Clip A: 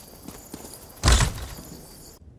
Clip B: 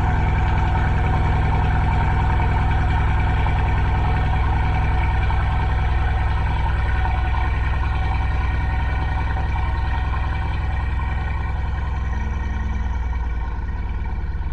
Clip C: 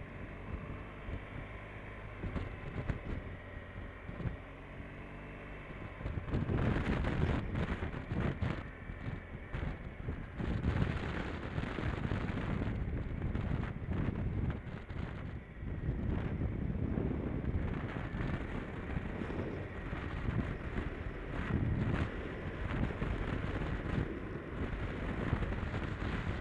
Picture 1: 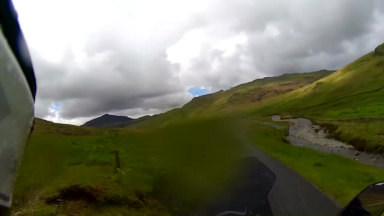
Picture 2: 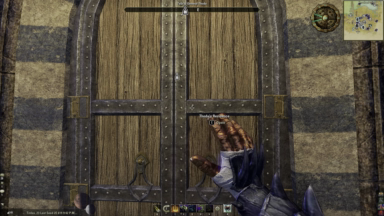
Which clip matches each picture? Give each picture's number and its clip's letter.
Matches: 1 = C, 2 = A